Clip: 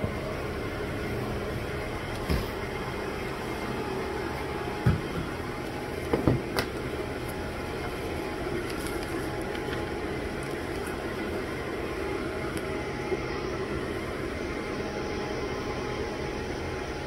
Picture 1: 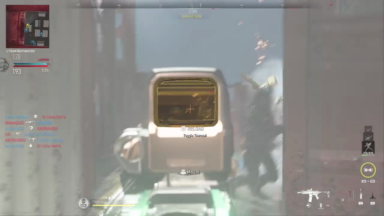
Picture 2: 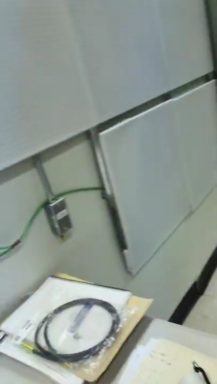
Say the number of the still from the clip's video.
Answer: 2